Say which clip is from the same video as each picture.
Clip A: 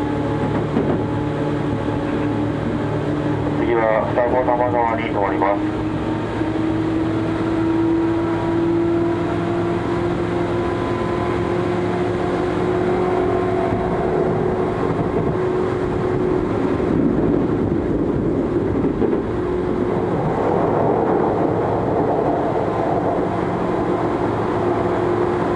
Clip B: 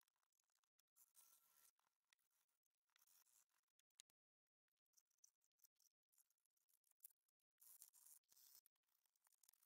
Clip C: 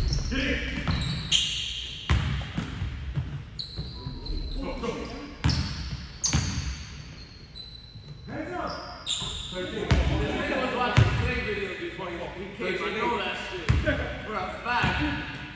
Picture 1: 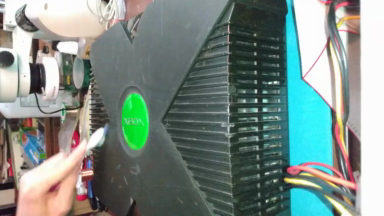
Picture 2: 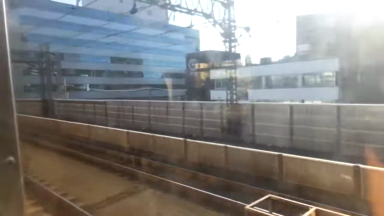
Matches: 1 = B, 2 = A